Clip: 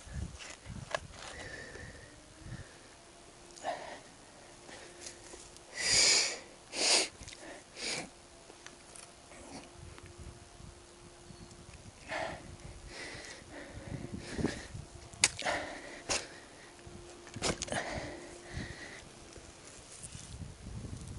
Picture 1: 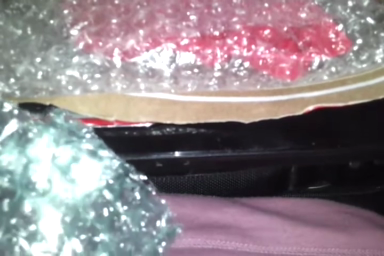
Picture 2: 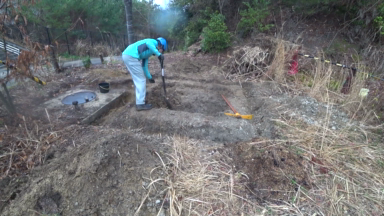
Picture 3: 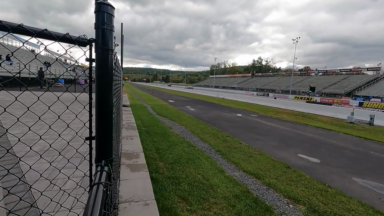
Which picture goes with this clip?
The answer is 2